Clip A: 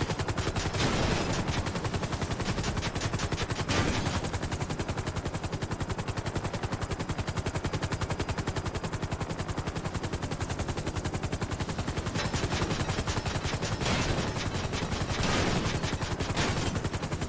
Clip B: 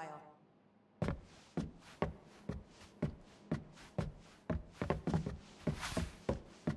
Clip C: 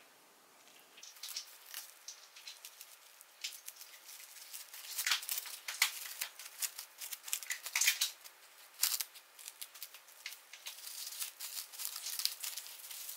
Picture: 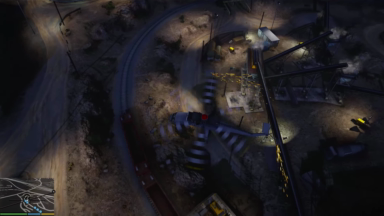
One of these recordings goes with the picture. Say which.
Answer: A